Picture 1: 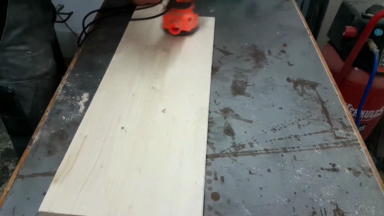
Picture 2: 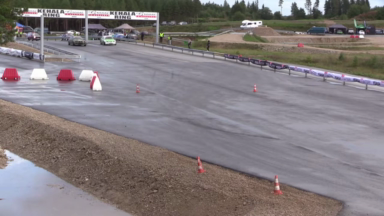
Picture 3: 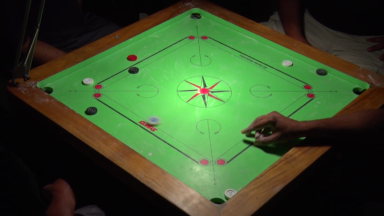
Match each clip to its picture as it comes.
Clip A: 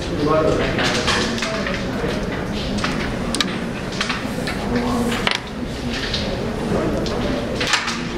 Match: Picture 3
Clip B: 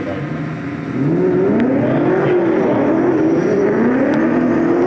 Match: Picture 2